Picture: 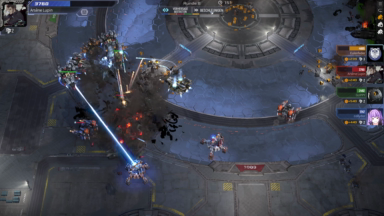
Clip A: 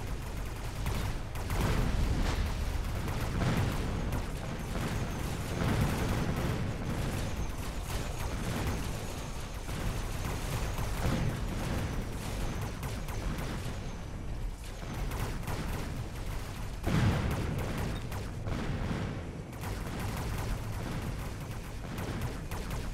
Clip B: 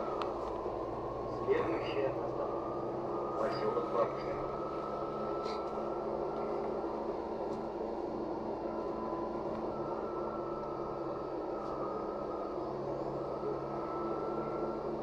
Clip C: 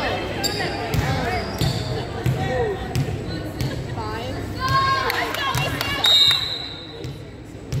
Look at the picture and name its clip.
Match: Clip A